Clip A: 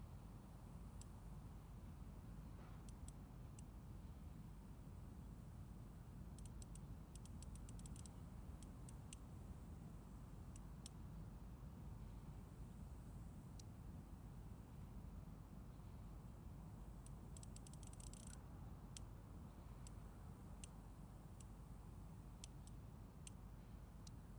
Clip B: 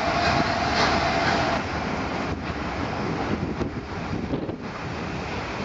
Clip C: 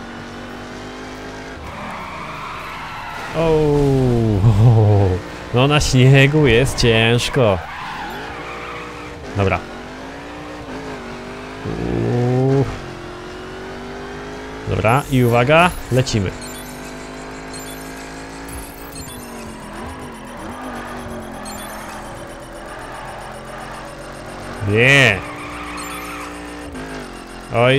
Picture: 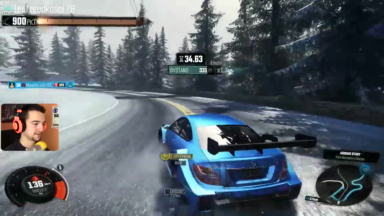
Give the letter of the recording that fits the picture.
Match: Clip C